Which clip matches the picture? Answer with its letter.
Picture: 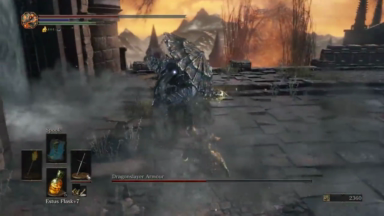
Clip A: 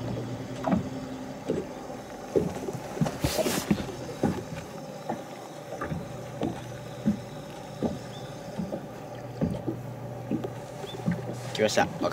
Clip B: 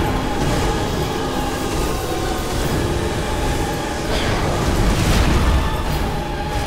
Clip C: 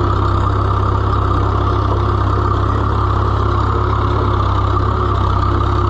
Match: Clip B